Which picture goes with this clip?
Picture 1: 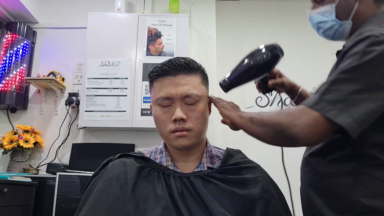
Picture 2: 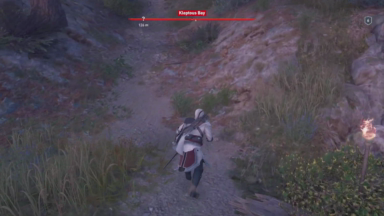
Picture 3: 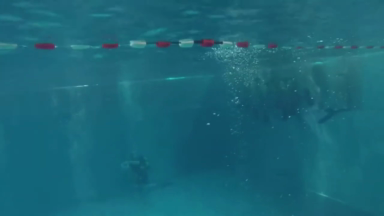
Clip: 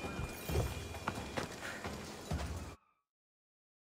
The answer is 2